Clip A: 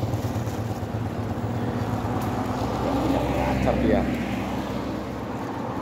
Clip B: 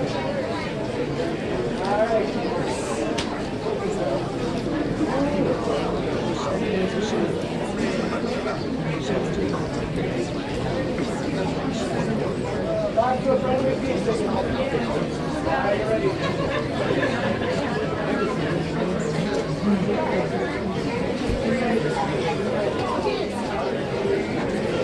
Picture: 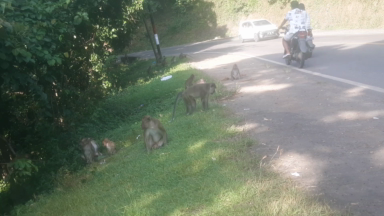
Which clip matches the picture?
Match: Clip A